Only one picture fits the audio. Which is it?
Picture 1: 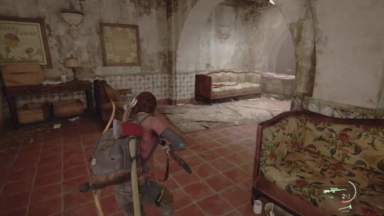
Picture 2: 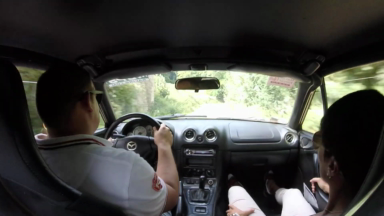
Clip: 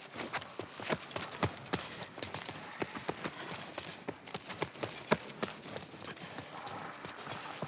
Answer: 1